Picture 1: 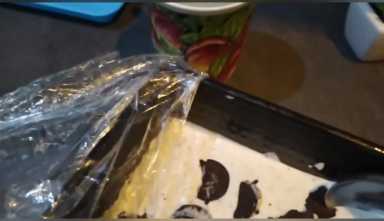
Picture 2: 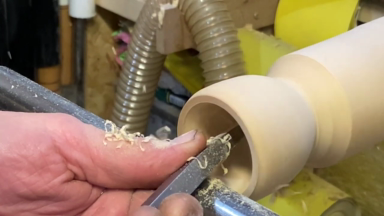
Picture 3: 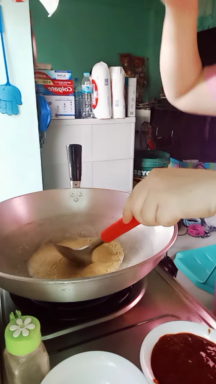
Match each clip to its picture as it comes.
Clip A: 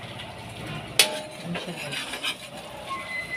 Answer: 3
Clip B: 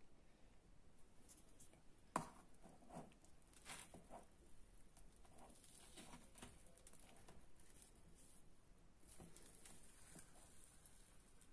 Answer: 1